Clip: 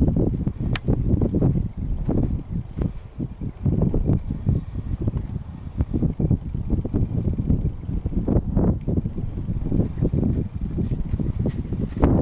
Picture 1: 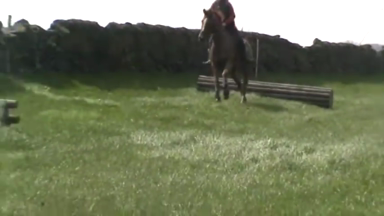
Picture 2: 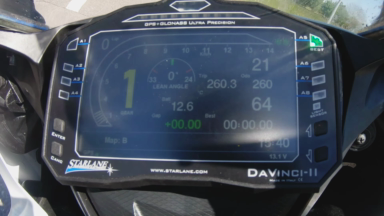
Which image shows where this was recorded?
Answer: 1